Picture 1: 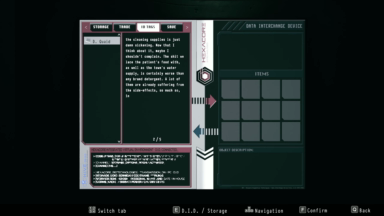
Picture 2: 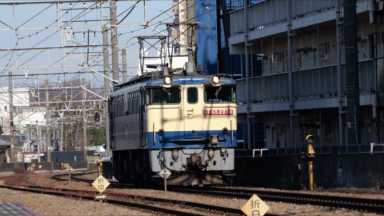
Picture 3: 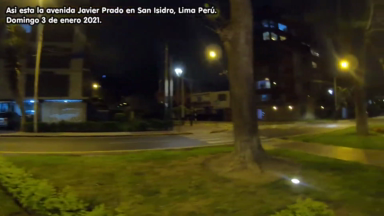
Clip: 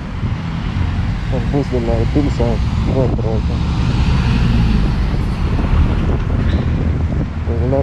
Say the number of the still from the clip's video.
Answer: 3